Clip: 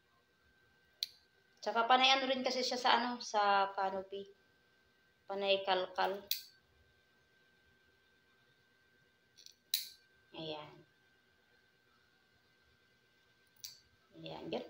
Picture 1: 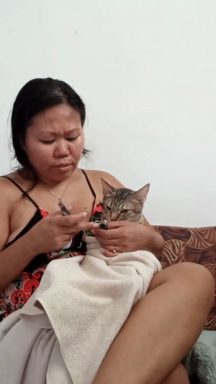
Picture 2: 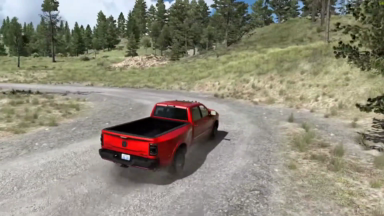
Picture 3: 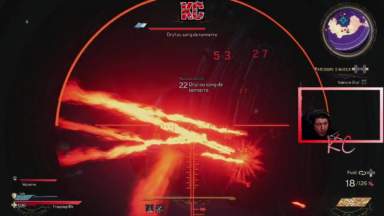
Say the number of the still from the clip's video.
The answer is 1